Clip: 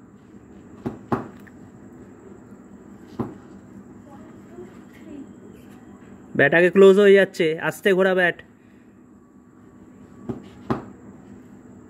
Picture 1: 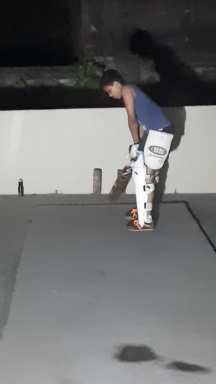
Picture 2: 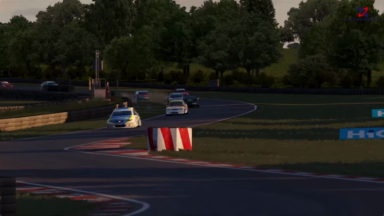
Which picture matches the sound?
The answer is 1